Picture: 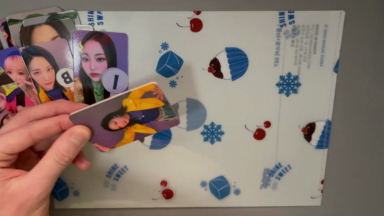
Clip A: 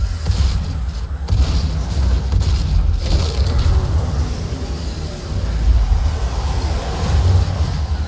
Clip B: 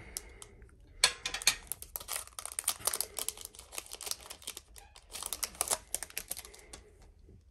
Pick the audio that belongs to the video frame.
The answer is B